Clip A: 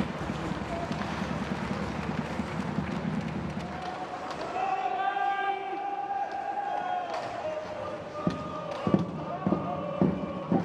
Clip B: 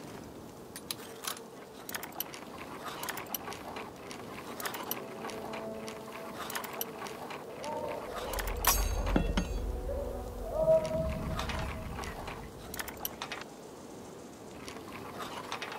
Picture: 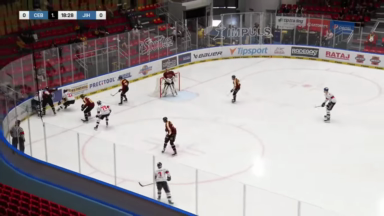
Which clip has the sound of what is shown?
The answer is A